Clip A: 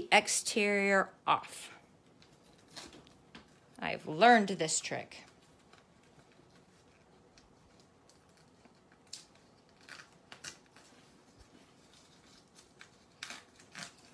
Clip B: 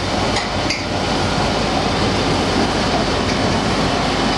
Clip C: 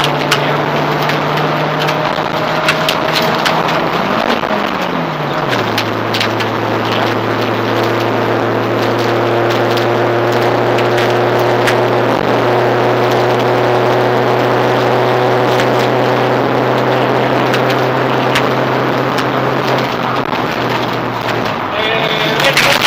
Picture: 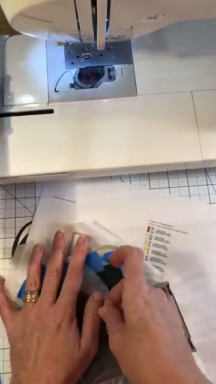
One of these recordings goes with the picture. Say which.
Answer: A